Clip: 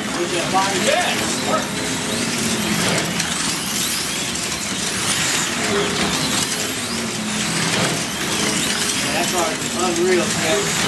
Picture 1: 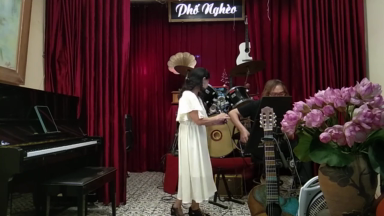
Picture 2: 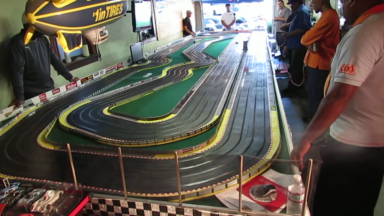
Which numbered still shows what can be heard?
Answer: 2